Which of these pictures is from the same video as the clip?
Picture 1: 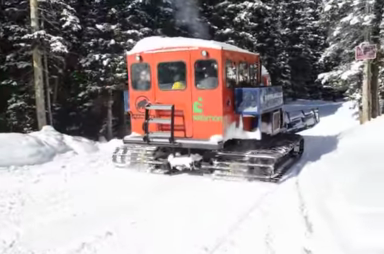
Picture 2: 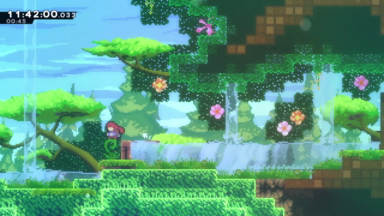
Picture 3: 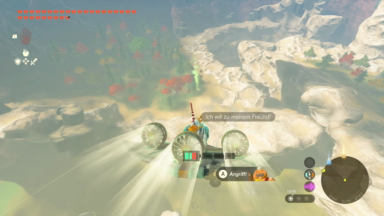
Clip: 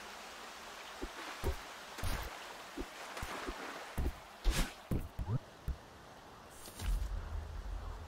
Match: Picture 2